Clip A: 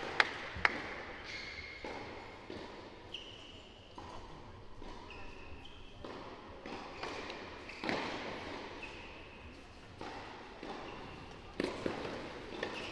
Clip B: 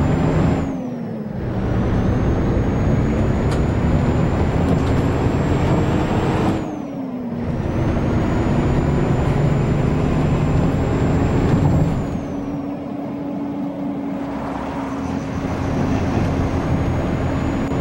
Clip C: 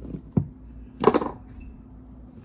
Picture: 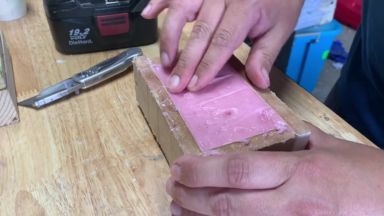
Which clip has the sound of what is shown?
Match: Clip C